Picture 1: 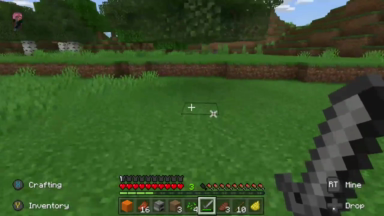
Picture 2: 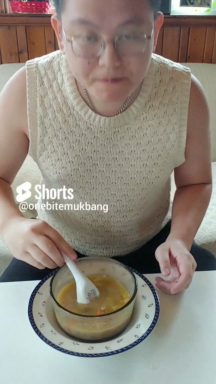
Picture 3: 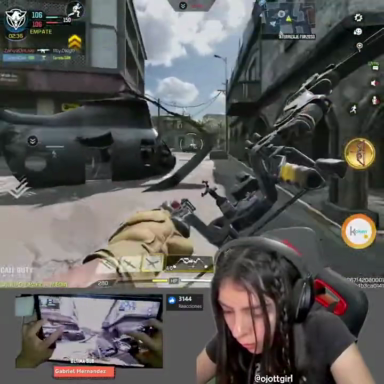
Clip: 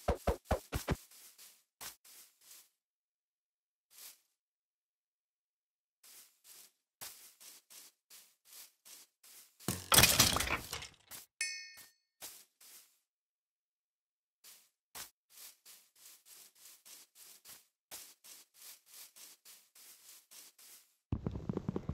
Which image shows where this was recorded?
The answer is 1